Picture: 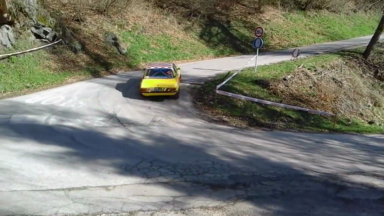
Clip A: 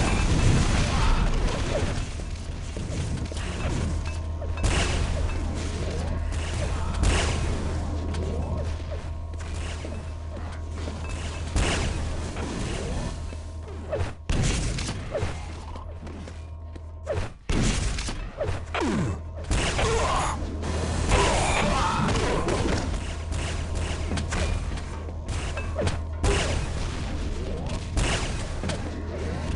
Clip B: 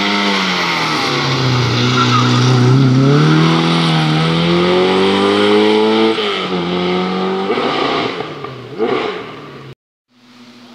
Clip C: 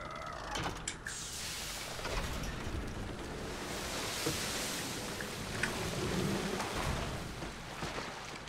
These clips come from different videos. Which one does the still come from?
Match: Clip B